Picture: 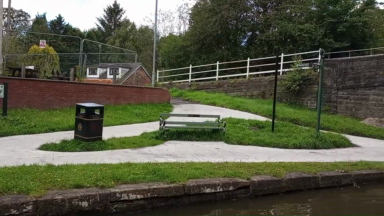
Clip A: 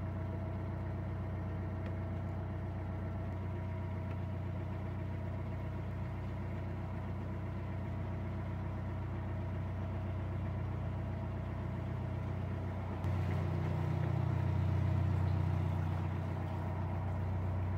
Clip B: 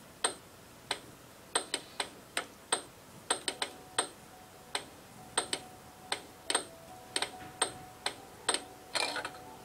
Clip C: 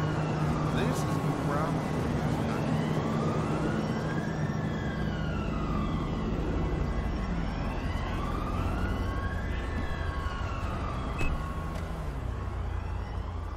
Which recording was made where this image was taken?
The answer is A